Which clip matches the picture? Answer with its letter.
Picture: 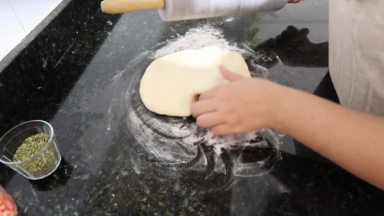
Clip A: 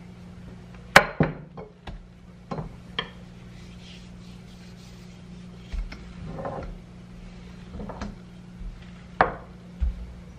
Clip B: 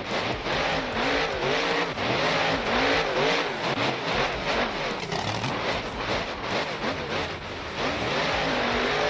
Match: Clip A